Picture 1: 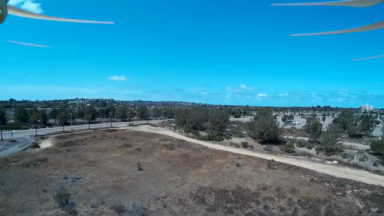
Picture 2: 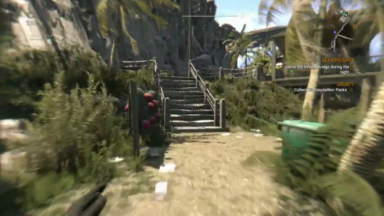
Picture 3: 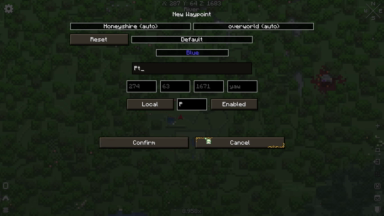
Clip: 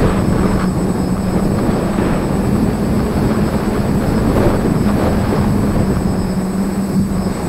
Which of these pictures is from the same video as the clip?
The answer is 1